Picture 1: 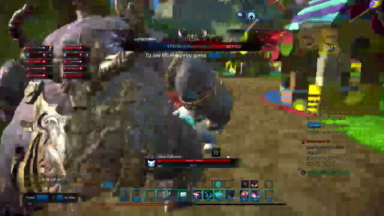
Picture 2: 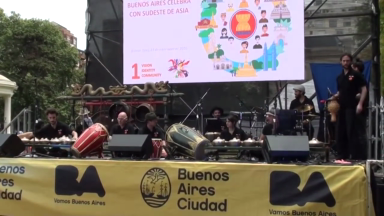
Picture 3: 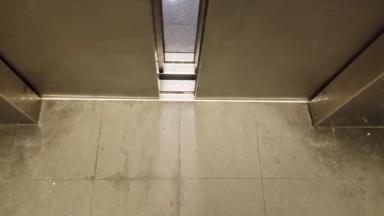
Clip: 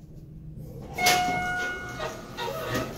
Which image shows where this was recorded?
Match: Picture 3